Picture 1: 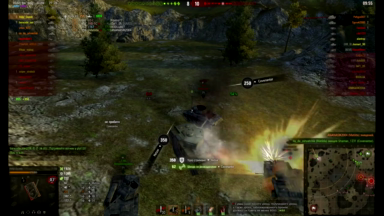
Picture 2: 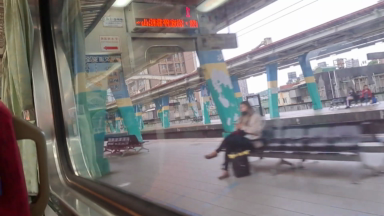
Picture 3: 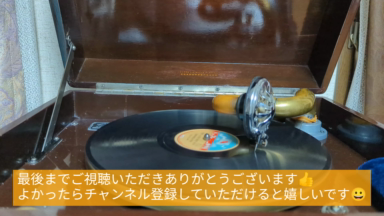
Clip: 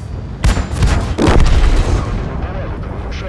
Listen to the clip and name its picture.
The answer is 1